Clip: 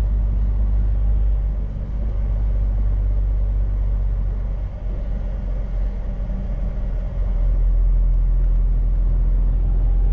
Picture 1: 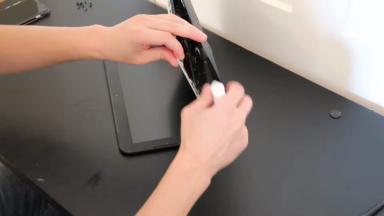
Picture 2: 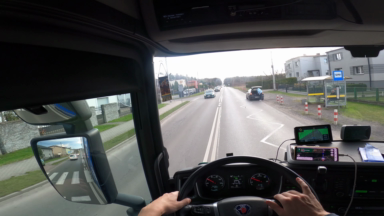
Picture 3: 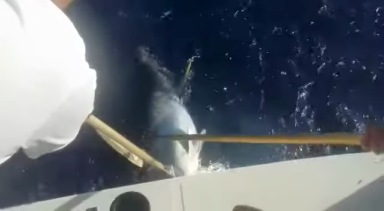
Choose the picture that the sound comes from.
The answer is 2